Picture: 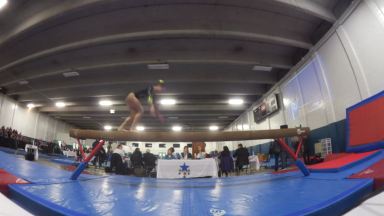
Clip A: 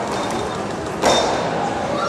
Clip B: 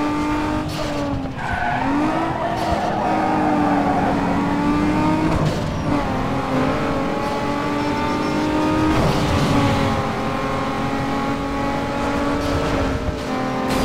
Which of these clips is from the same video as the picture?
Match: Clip A